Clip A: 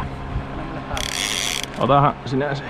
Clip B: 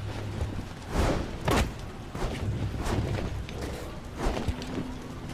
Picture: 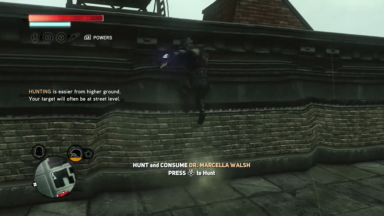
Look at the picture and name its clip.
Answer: B